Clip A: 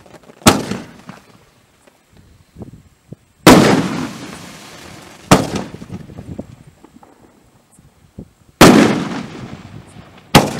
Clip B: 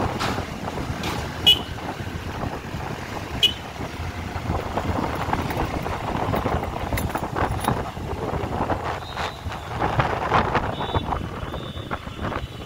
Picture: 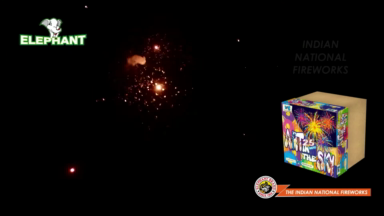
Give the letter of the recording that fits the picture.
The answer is A